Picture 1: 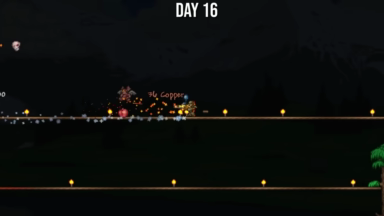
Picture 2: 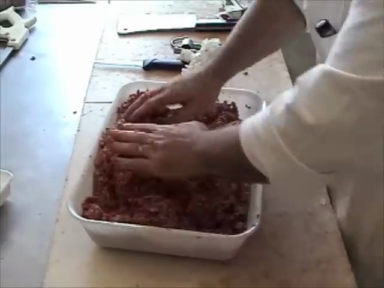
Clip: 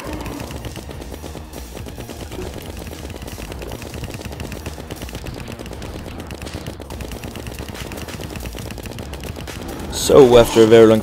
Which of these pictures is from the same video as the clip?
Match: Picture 1